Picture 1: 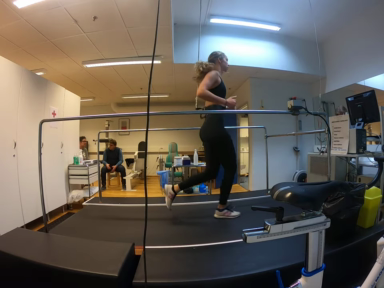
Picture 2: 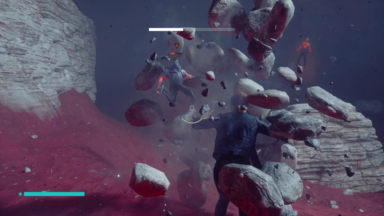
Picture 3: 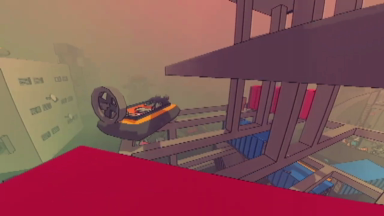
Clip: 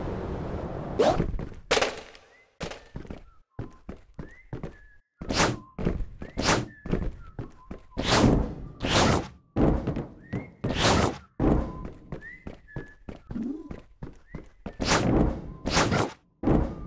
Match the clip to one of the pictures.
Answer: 3